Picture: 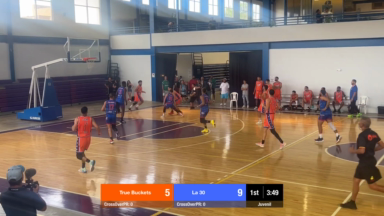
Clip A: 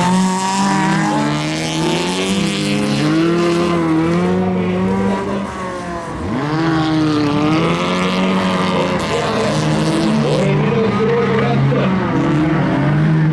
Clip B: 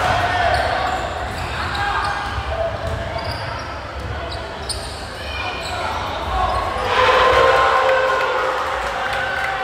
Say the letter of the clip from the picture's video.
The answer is B